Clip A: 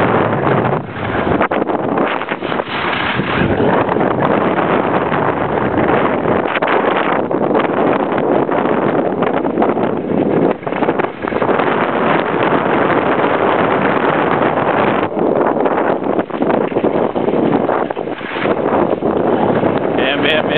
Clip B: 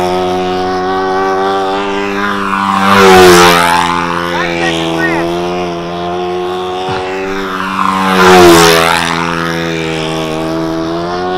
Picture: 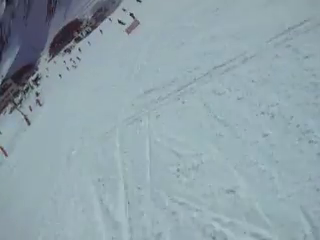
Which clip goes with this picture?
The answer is A